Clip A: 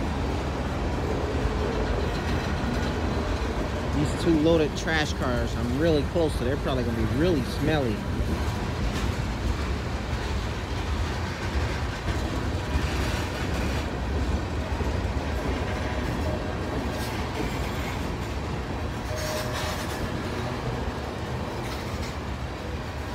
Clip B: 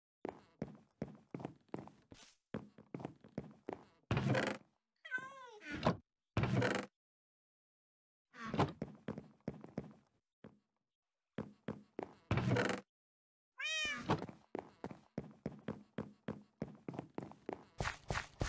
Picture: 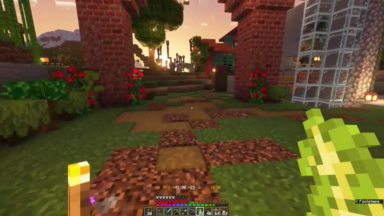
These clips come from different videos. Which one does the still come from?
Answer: B